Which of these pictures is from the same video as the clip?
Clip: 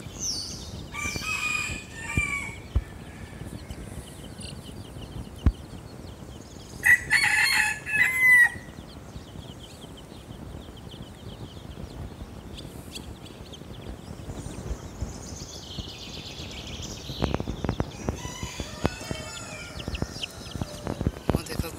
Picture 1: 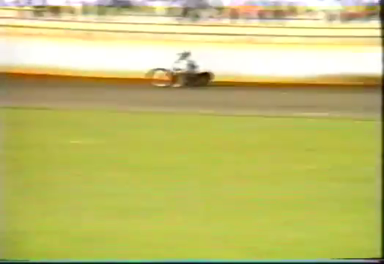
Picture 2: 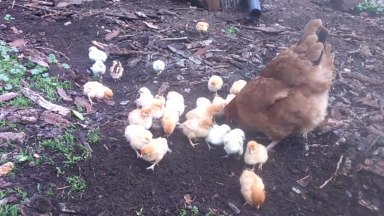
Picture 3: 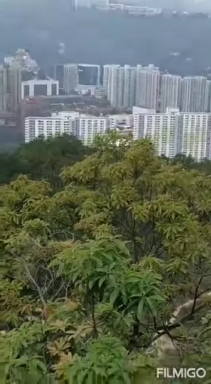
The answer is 2